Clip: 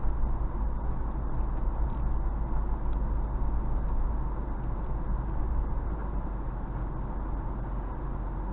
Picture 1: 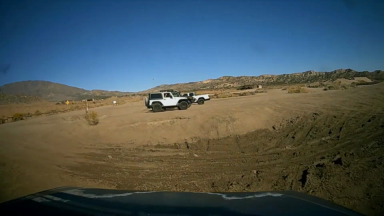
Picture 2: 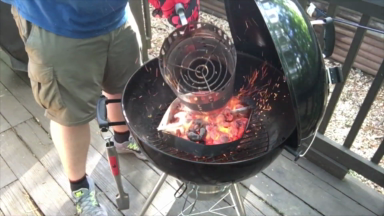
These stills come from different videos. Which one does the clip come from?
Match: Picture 1